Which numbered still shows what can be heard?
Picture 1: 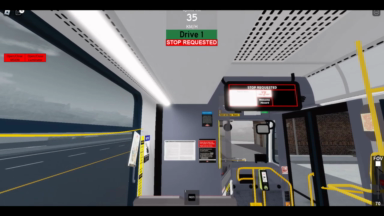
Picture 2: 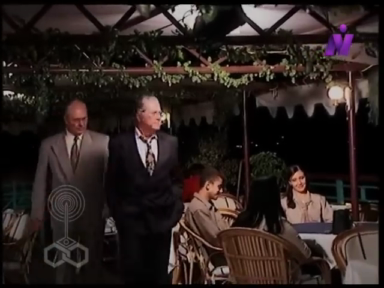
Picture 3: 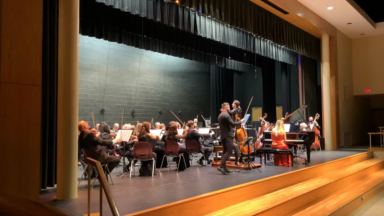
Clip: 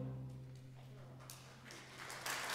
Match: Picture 3